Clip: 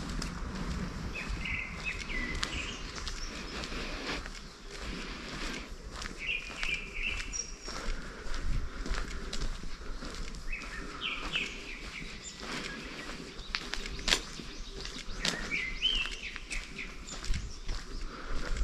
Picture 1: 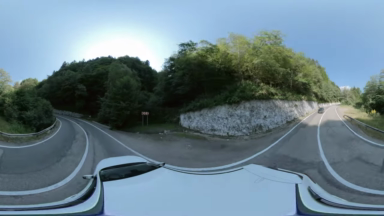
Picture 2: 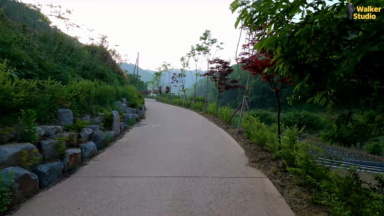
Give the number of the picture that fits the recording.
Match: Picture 2